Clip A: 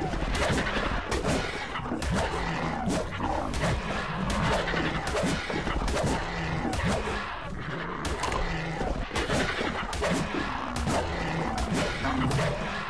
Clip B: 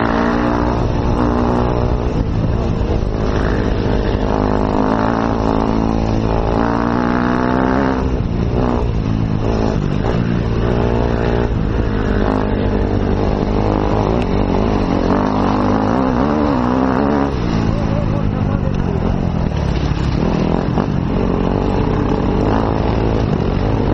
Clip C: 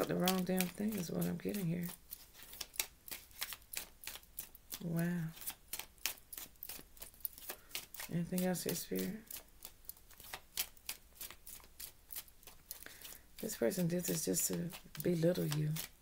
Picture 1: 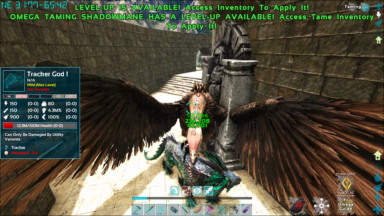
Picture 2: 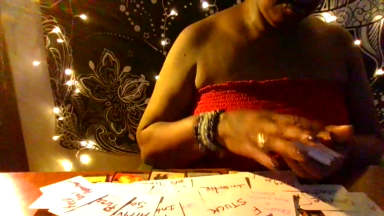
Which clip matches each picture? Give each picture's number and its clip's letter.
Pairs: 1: A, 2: C